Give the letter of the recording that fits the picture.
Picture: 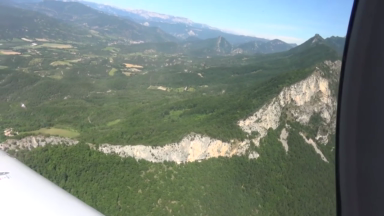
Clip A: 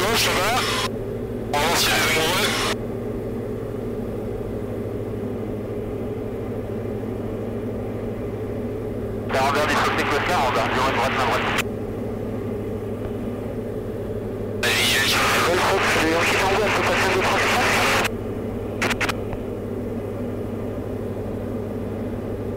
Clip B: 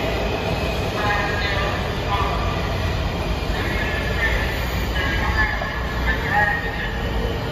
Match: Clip A